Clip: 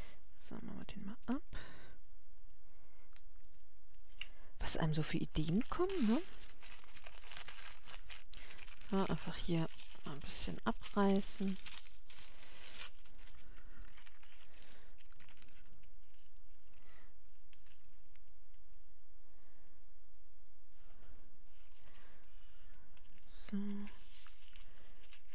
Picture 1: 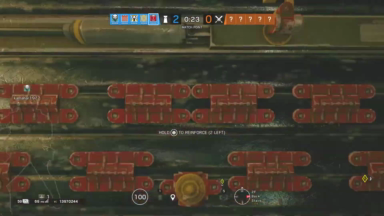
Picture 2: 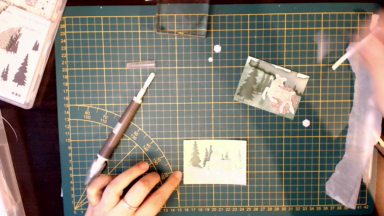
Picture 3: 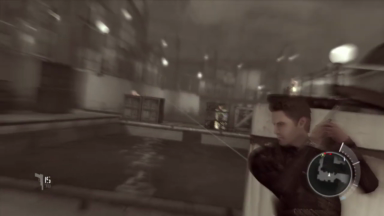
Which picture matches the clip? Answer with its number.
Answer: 2